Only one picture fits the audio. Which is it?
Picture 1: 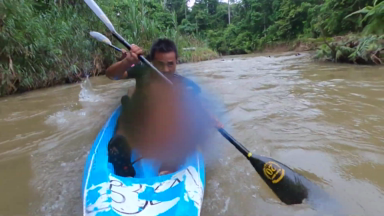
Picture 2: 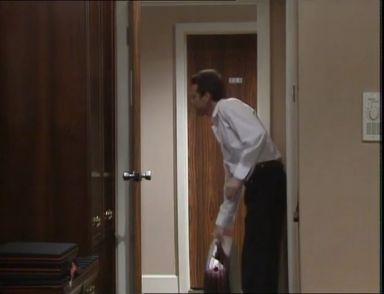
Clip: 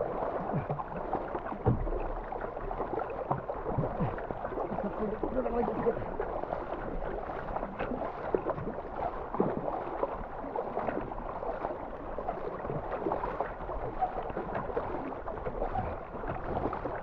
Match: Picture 1